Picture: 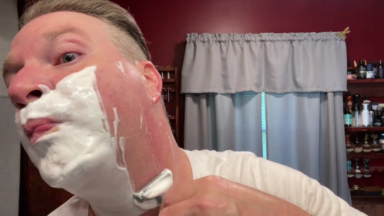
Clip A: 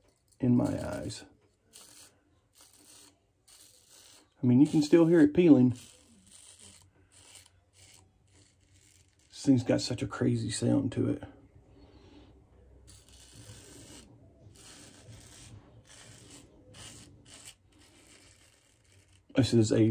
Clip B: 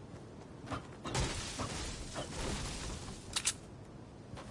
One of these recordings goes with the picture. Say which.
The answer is A